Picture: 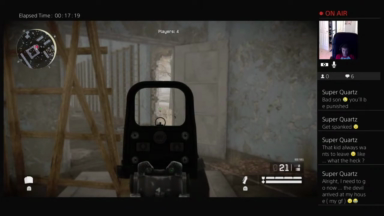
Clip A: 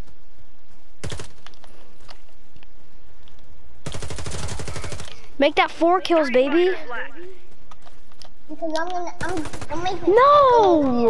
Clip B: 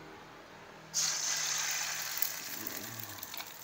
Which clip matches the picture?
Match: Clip A